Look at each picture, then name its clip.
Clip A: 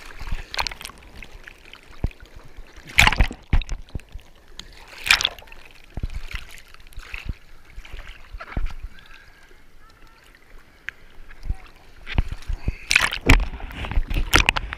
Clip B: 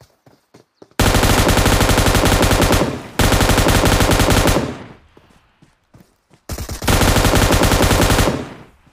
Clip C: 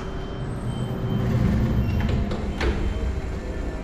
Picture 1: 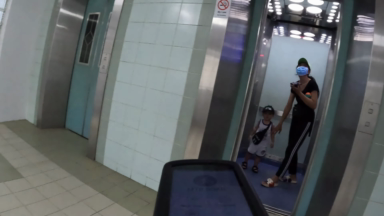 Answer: C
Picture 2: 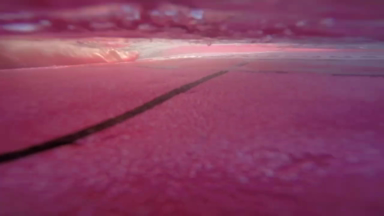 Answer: A